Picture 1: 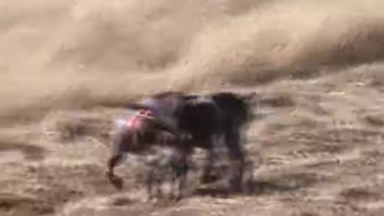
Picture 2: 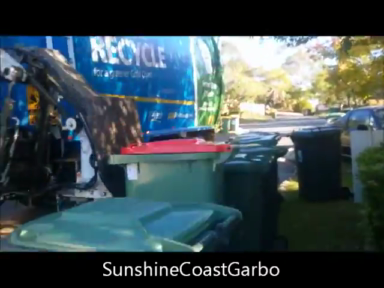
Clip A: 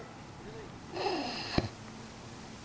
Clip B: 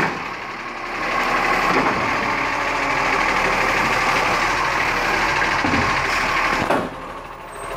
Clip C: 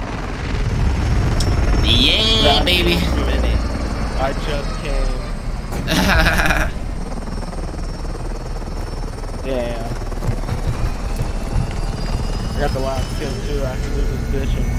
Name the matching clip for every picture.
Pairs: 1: A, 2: B